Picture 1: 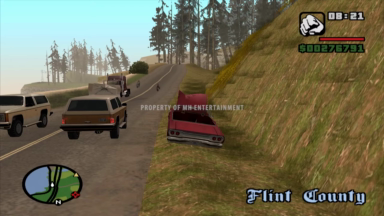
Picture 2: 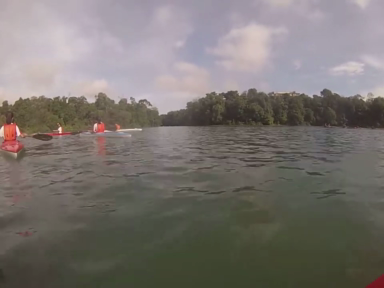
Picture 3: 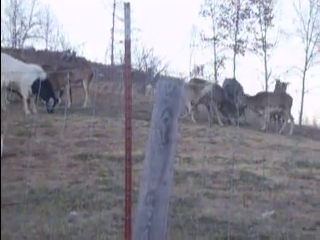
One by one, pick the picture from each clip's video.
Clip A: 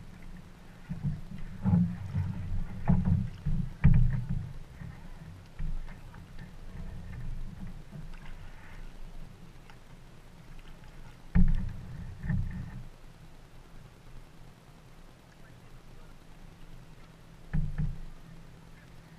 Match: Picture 2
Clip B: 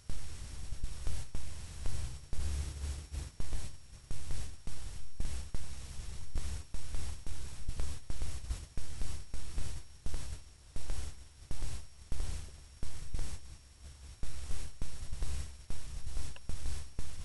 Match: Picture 3